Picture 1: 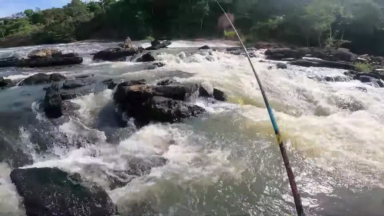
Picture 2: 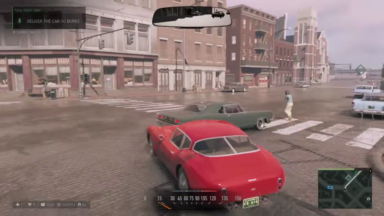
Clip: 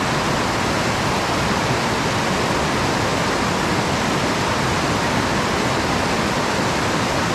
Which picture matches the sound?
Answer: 1